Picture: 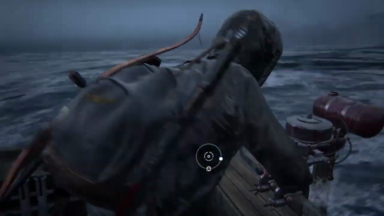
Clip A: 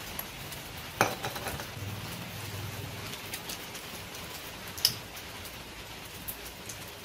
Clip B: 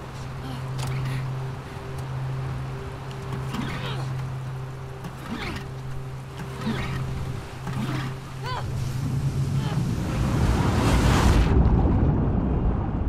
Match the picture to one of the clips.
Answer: B